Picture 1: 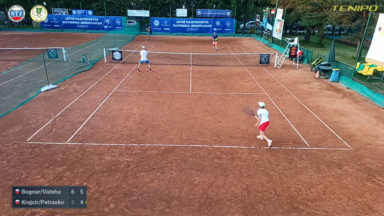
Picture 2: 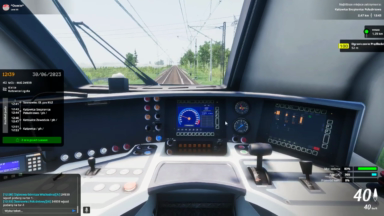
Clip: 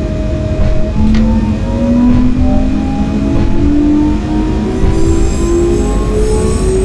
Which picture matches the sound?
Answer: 2